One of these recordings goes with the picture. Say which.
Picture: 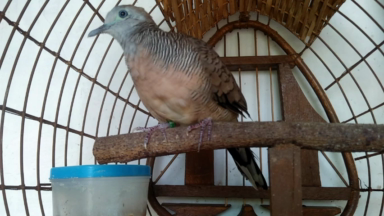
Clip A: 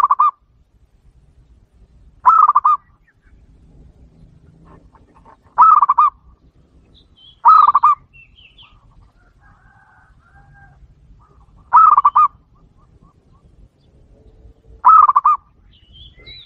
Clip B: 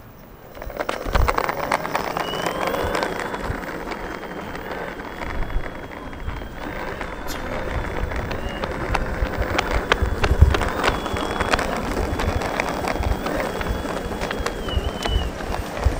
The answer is A